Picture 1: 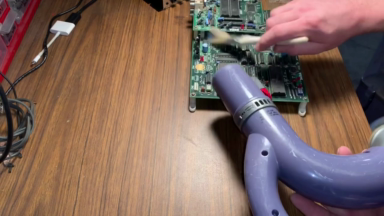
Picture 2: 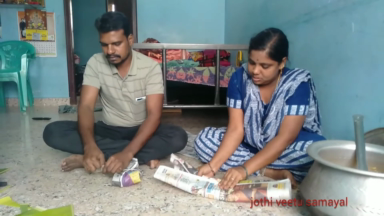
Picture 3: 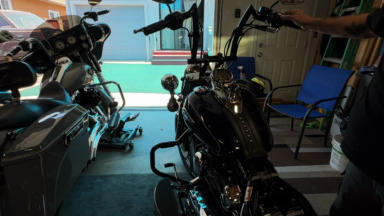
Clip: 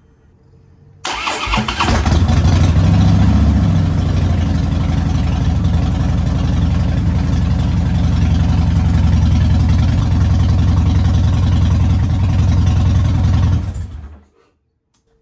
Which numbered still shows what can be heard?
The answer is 3